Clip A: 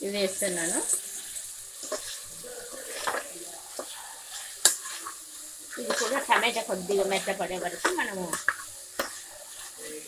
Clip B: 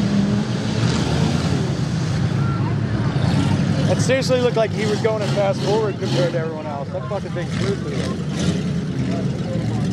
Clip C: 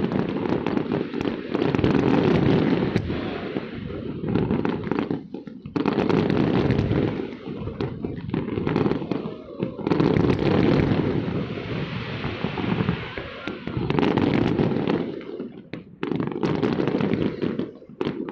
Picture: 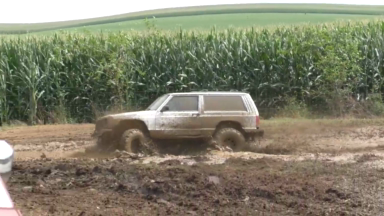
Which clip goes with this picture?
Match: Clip B